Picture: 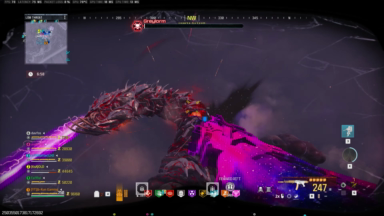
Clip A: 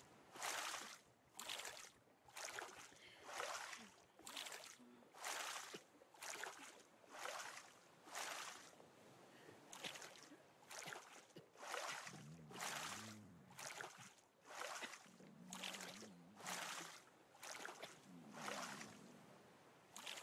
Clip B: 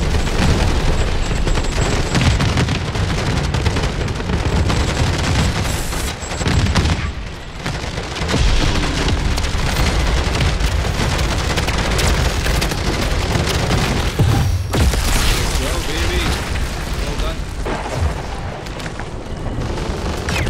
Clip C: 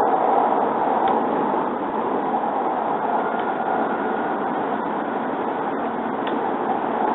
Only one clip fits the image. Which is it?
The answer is B